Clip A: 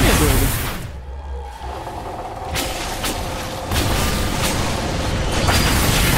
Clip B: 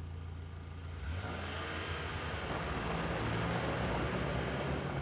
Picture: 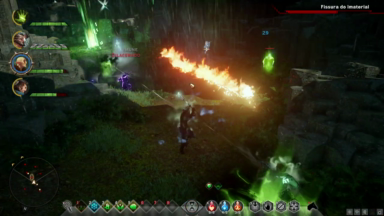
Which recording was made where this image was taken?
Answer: A